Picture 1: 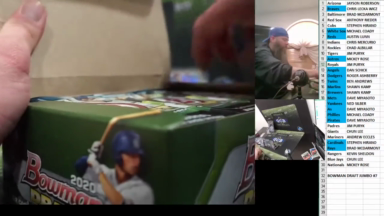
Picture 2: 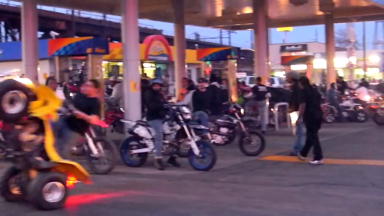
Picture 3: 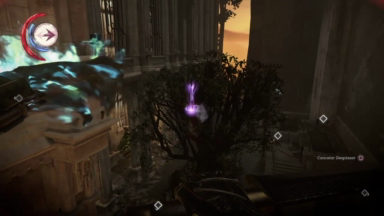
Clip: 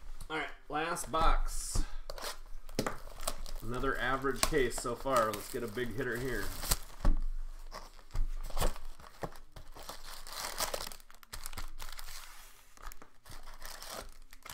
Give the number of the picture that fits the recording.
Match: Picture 1